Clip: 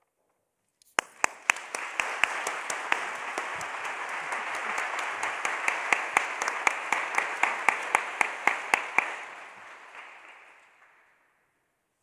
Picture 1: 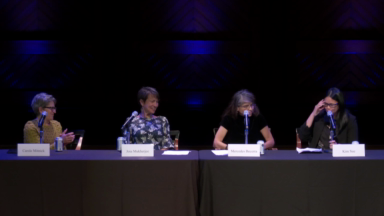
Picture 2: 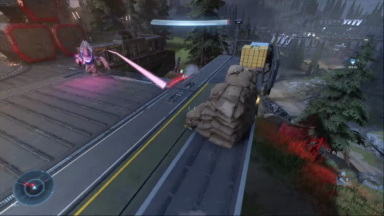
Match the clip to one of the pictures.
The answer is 1